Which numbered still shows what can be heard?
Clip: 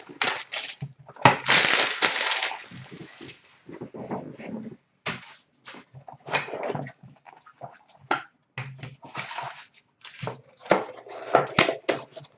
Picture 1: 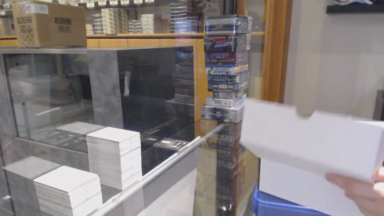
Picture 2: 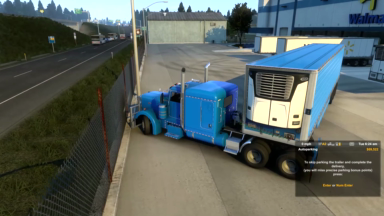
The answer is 1